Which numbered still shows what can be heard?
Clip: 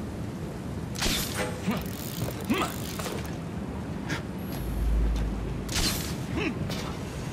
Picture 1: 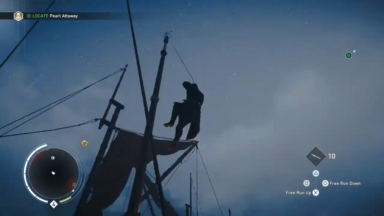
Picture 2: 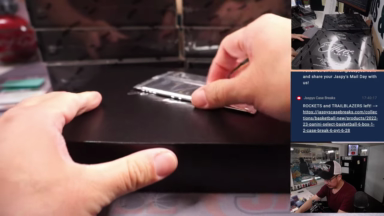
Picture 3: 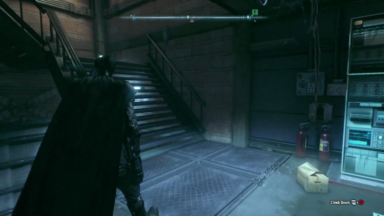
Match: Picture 1